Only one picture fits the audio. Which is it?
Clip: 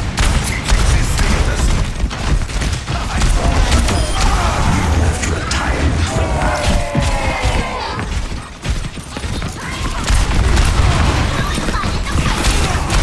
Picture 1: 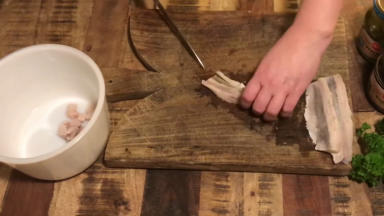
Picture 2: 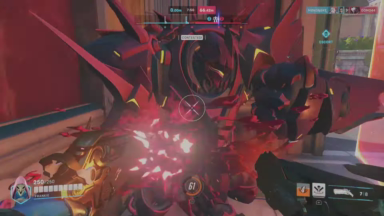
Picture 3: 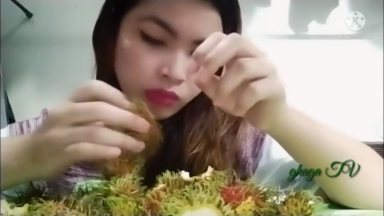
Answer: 2